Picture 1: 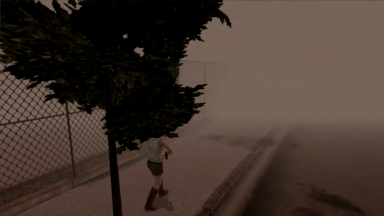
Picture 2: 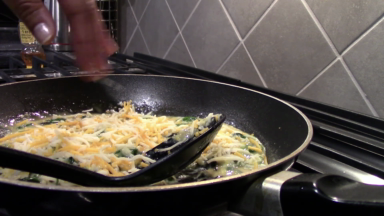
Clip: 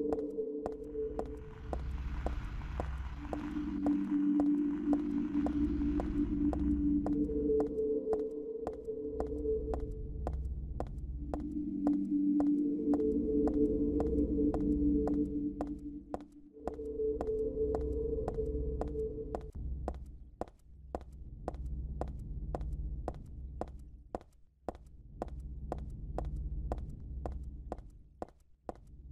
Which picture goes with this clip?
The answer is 1